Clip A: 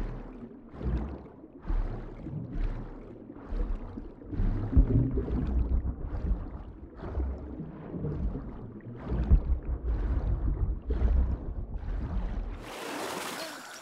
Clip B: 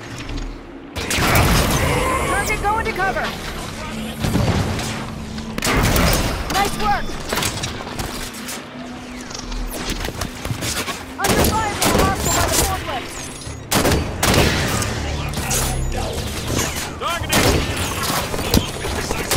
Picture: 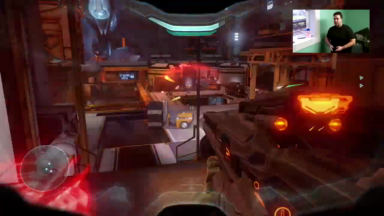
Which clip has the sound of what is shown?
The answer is B